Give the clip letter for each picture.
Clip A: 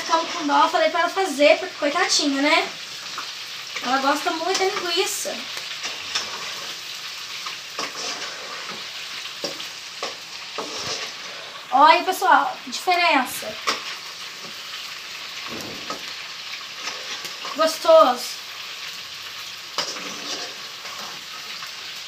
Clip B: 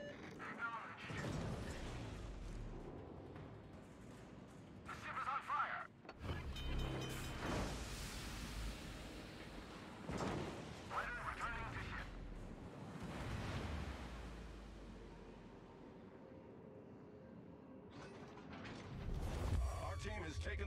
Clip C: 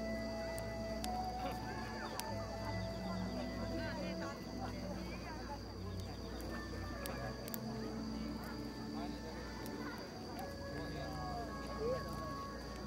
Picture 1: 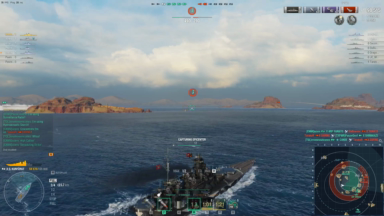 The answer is B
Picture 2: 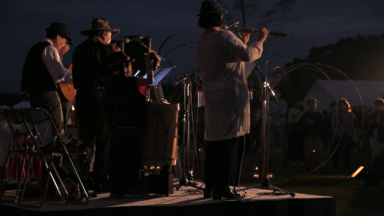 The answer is C